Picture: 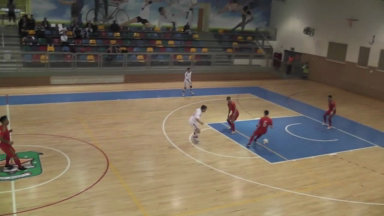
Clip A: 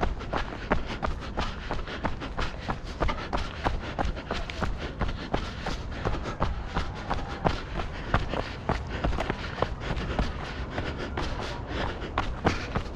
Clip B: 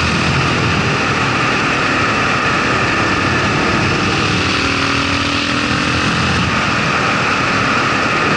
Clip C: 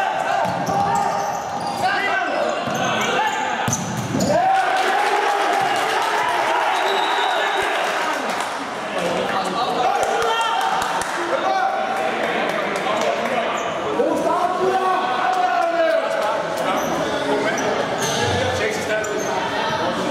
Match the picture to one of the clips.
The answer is C